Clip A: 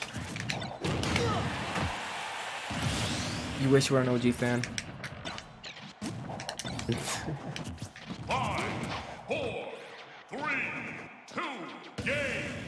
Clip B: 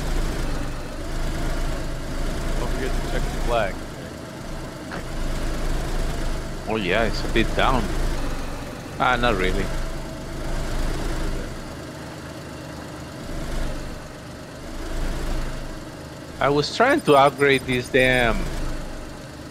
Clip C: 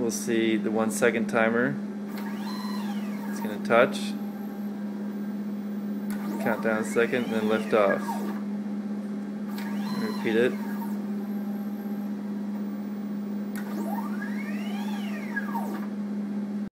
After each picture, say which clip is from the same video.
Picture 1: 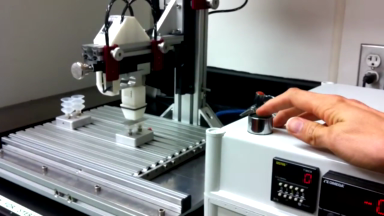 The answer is C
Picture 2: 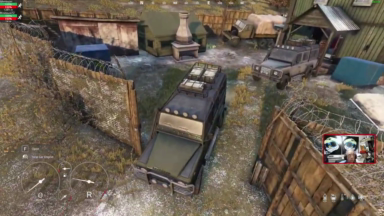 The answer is B